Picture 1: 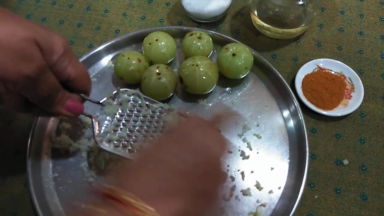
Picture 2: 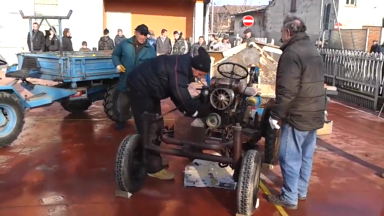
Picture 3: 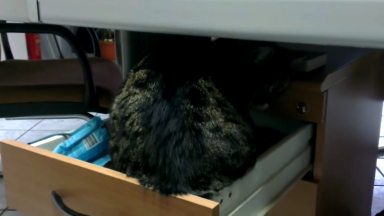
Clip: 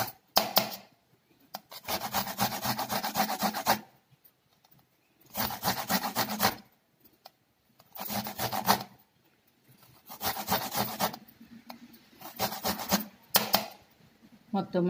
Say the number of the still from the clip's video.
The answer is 1